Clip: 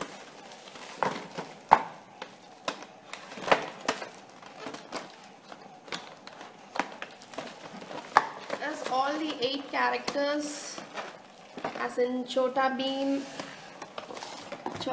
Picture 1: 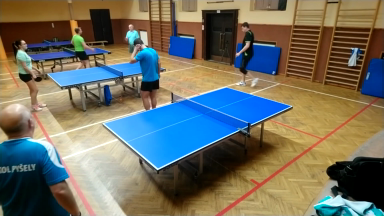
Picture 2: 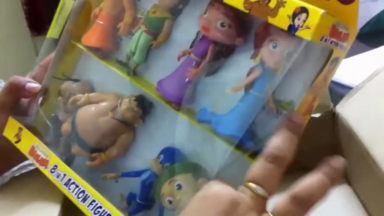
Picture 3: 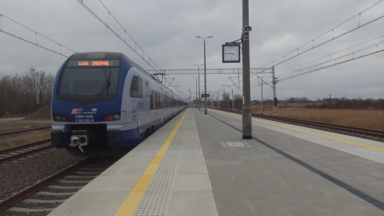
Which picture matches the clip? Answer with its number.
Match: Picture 2